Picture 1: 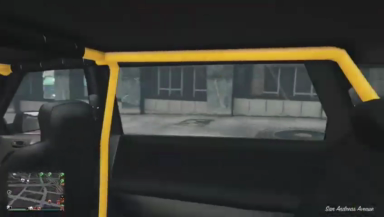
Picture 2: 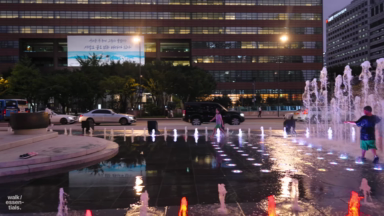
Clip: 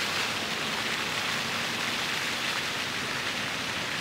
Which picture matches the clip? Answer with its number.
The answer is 2